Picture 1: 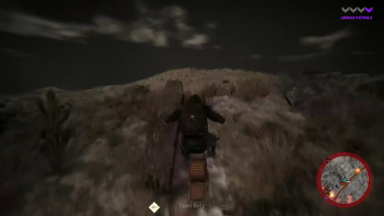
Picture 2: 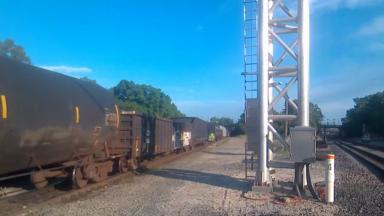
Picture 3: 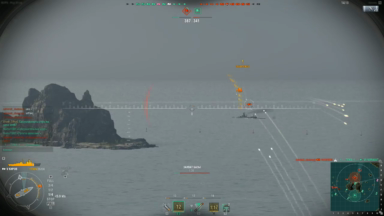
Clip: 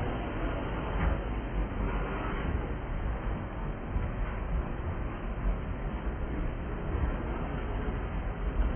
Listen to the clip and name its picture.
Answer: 2